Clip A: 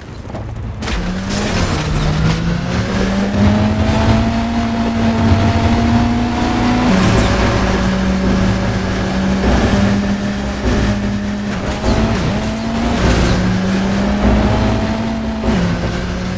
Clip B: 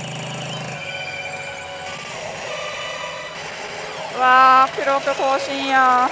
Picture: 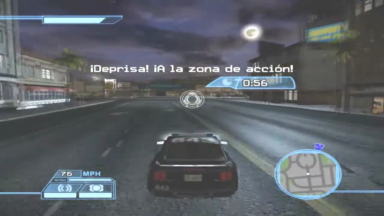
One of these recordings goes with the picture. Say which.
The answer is A